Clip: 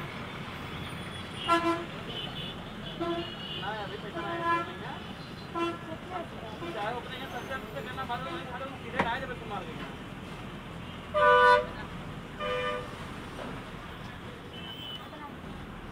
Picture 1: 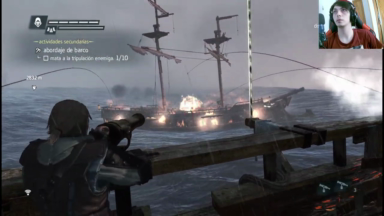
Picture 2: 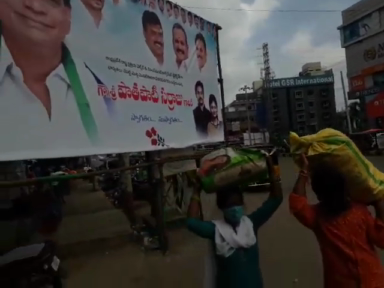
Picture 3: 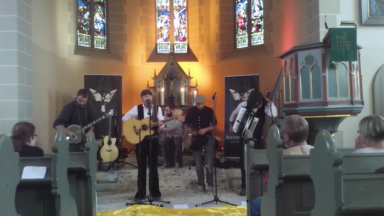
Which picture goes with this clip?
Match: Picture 2